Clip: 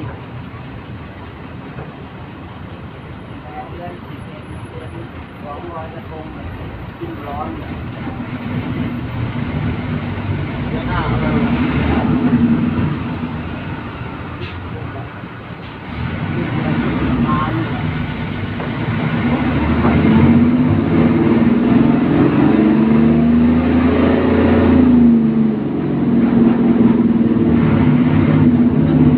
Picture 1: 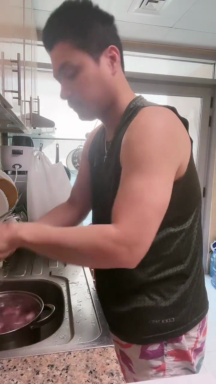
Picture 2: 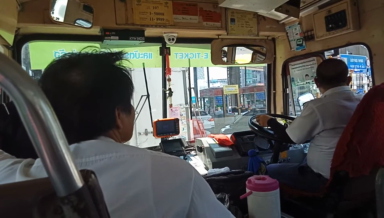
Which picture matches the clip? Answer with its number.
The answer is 2